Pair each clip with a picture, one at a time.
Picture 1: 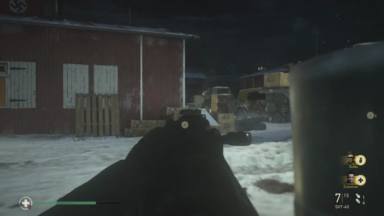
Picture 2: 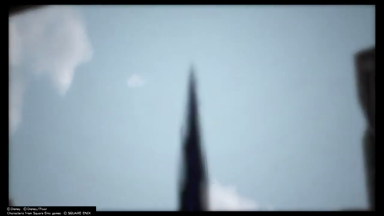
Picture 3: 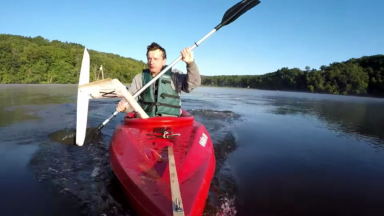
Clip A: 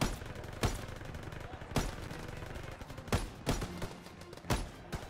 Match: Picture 1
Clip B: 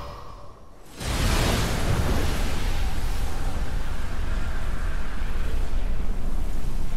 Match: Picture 2